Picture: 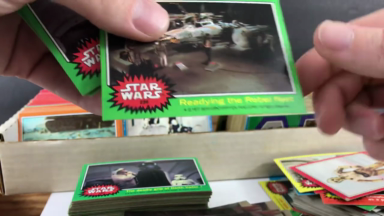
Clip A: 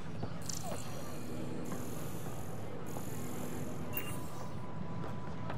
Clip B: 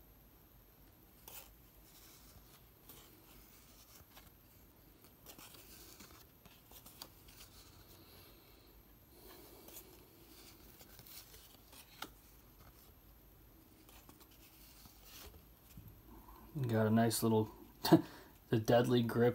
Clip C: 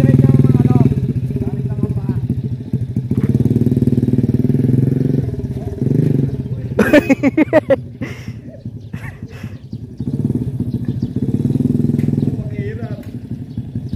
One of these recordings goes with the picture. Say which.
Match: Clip B